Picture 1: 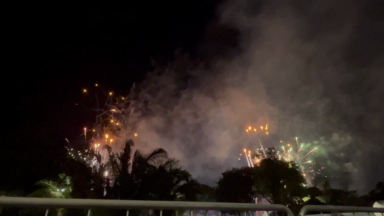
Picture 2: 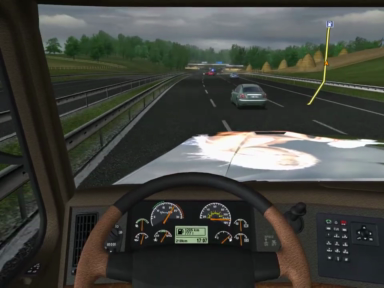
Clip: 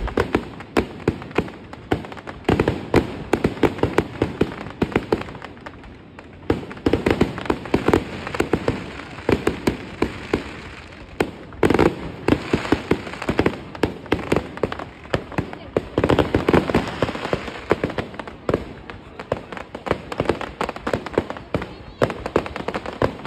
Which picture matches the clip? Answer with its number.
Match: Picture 1